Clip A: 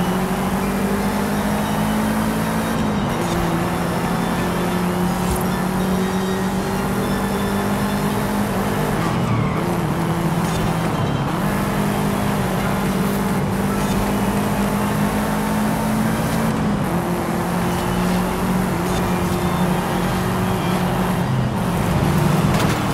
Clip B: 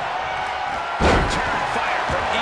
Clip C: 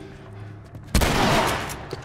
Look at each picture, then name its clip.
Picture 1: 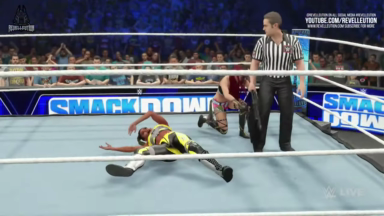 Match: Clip B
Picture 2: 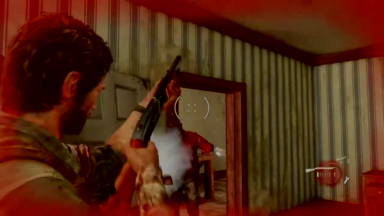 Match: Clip C